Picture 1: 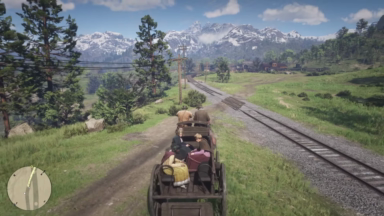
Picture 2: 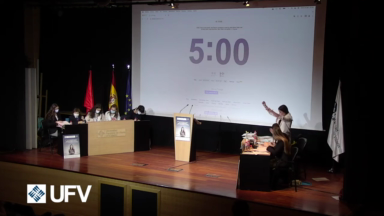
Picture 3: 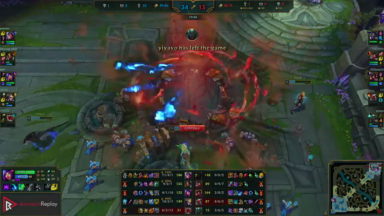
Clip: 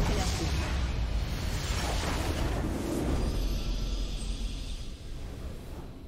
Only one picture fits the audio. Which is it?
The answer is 3